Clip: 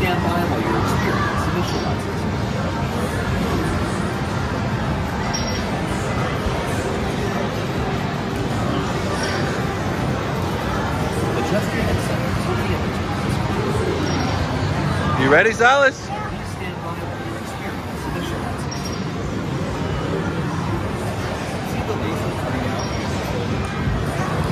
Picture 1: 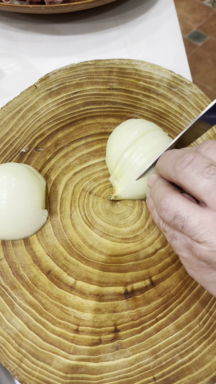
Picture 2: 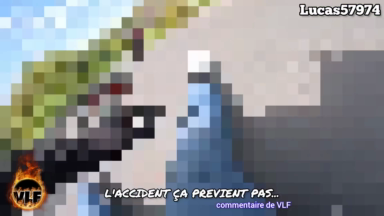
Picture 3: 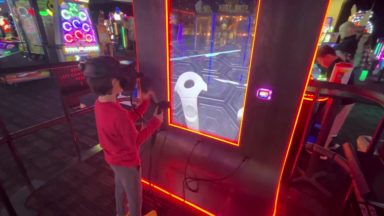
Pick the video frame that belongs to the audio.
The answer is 3